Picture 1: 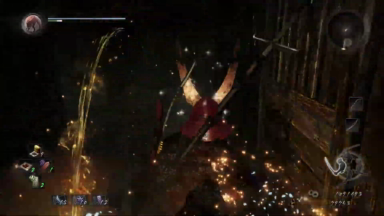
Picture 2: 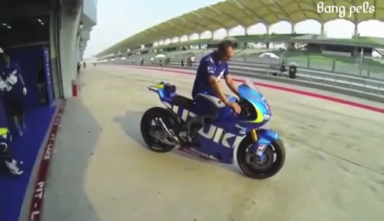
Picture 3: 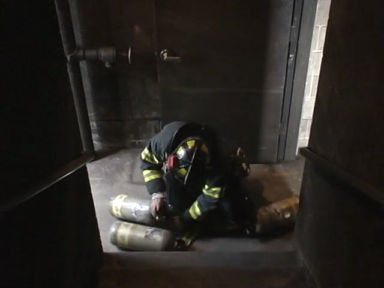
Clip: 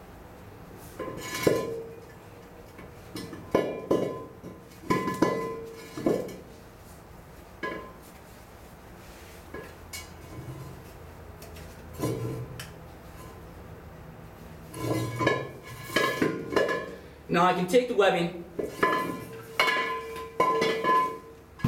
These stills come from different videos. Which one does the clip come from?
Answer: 3